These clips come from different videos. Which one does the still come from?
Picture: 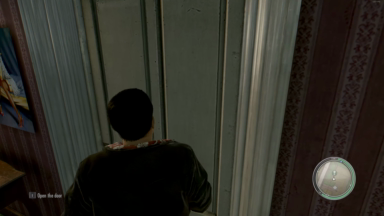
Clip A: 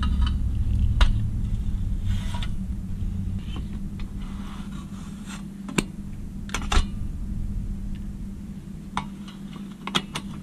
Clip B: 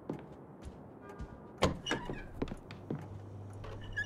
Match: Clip B